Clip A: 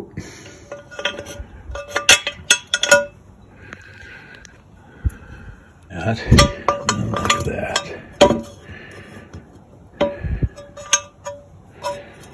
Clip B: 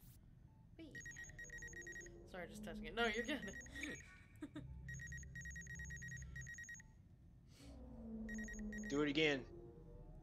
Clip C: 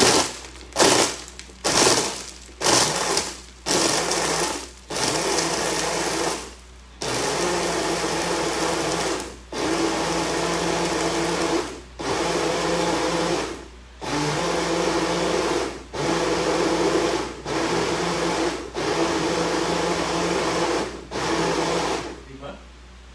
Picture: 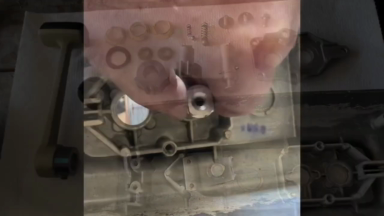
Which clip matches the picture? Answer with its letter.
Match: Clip A